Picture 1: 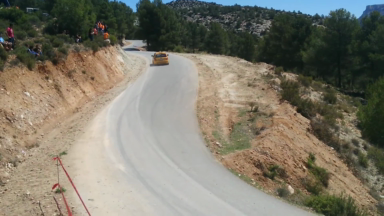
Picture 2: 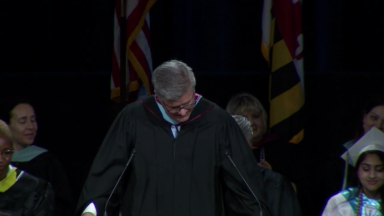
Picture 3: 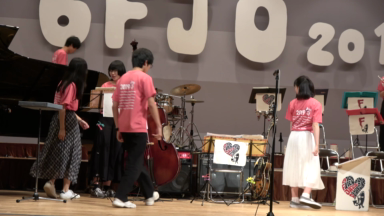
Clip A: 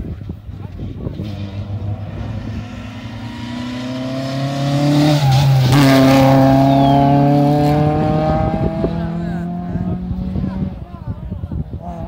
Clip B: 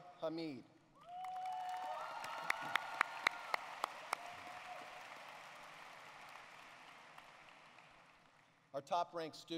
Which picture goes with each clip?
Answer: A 1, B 2